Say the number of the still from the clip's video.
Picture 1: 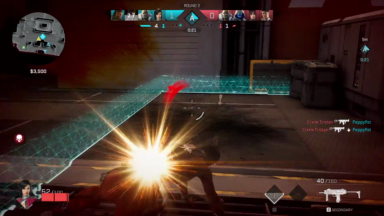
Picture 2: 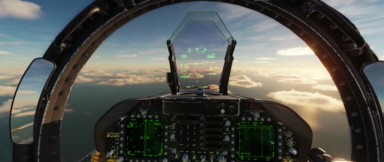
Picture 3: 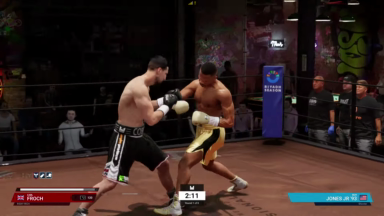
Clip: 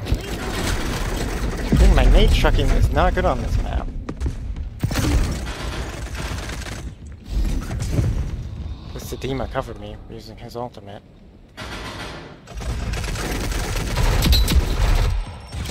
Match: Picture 1